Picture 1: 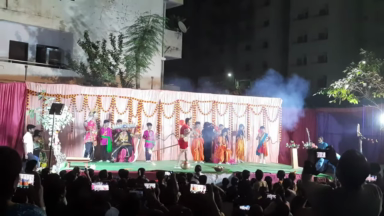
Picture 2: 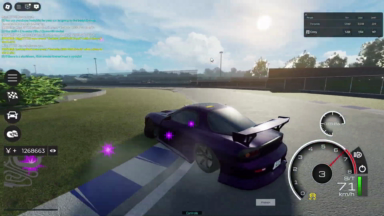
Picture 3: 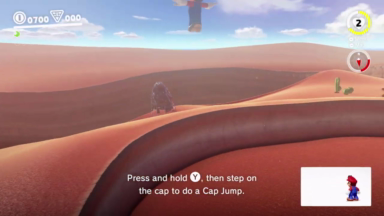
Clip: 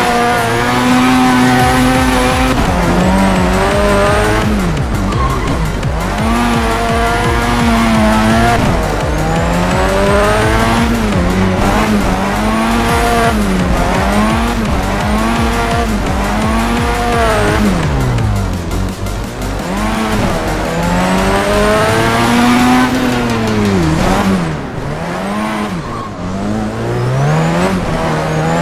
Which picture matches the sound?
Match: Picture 2